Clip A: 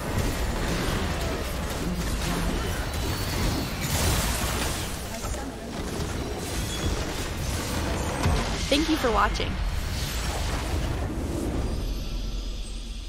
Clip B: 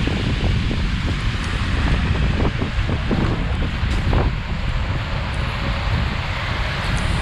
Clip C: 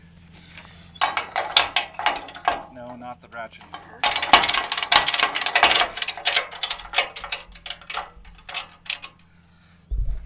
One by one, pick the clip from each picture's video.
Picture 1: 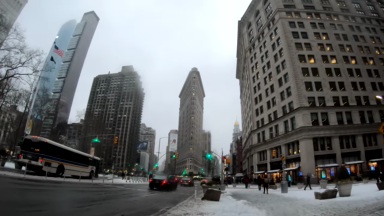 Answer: B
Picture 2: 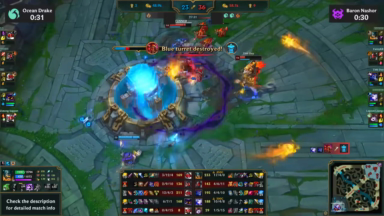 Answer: A